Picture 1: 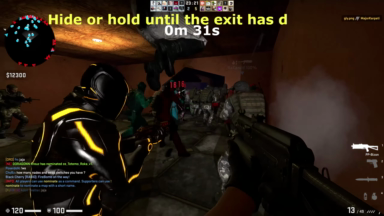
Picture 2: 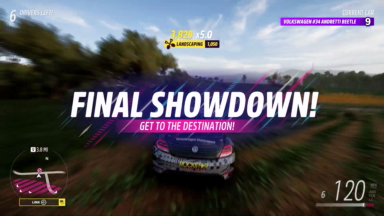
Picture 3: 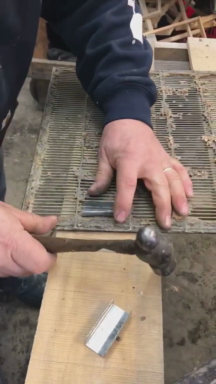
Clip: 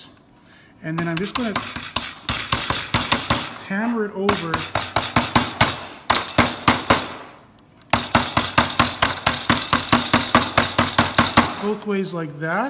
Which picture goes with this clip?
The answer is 3